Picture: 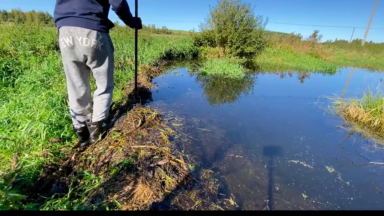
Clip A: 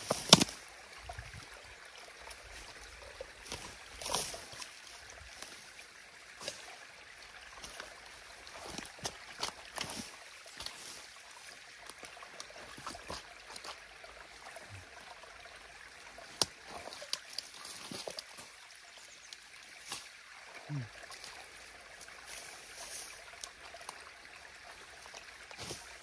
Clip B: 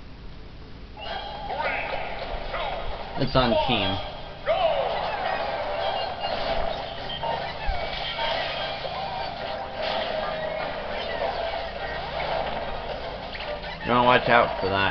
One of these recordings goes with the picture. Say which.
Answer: A